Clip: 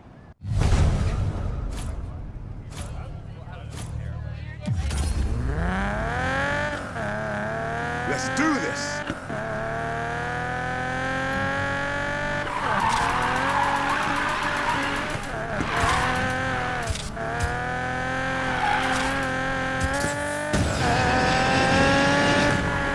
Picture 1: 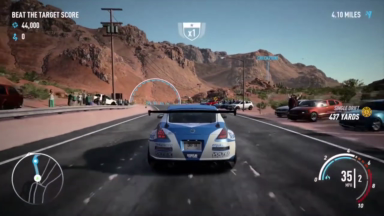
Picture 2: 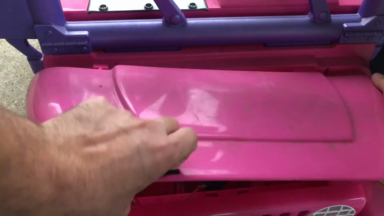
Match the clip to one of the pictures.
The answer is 1